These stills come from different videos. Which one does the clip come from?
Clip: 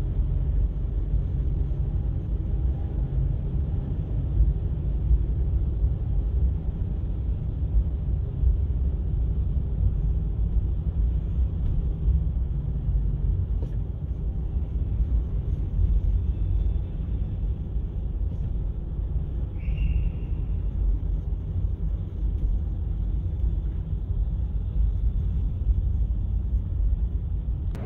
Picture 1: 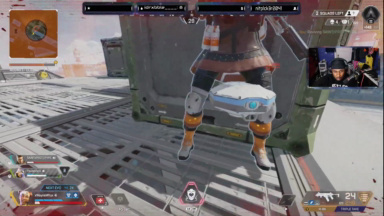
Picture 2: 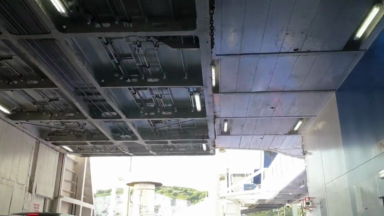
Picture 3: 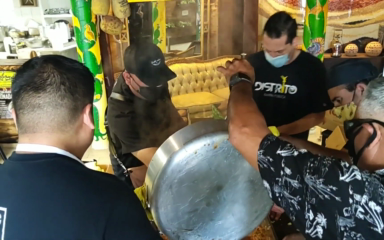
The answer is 2